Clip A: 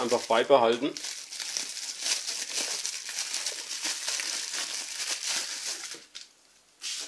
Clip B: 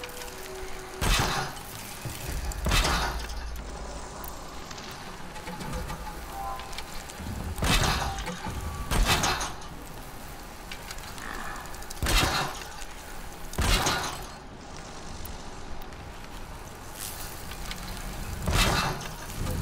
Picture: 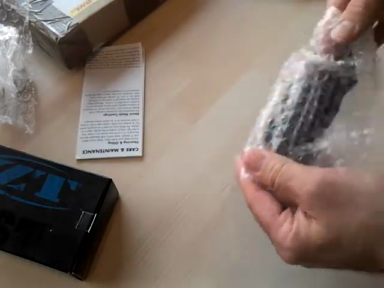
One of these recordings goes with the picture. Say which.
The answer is A